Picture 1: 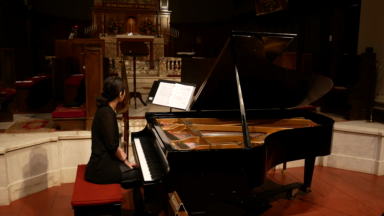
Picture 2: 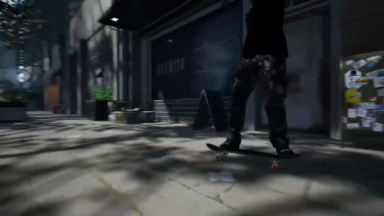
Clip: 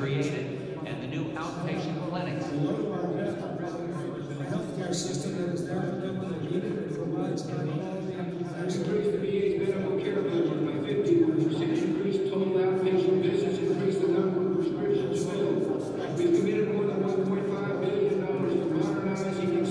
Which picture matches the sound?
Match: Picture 1